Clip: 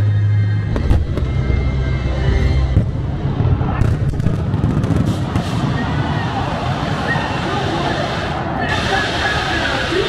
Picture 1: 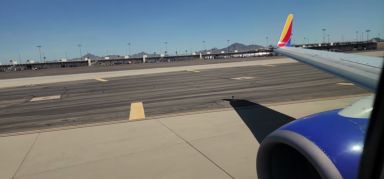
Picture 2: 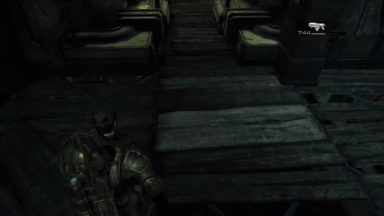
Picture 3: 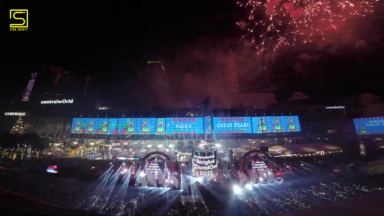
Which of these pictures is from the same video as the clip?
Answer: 3